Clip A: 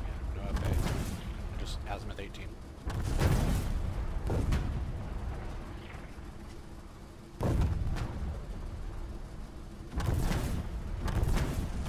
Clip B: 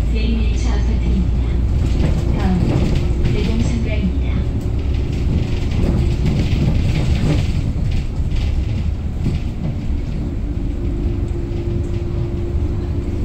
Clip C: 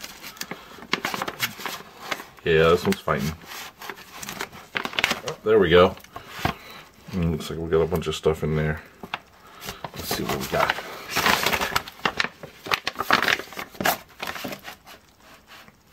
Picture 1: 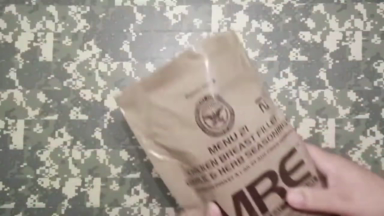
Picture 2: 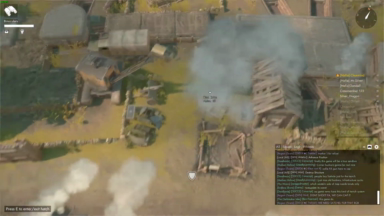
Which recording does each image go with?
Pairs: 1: C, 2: A